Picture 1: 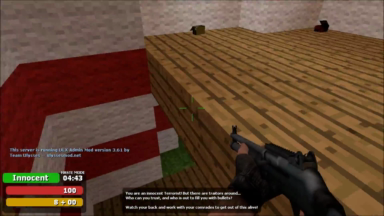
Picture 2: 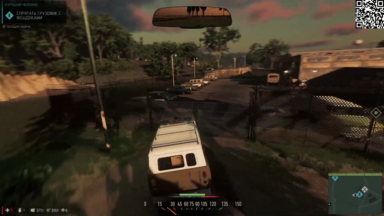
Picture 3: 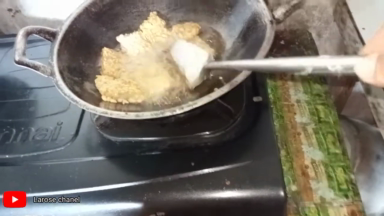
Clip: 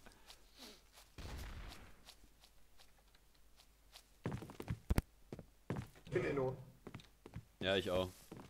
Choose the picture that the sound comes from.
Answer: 1